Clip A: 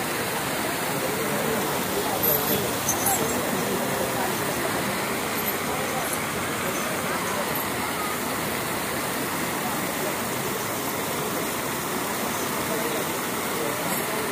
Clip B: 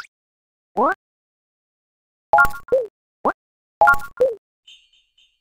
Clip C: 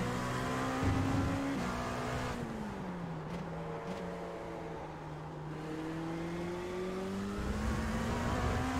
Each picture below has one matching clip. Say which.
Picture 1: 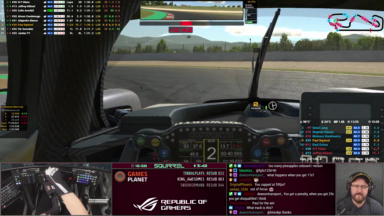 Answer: C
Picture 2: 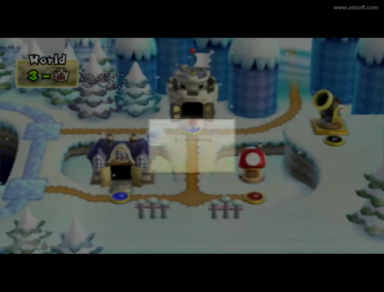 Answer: B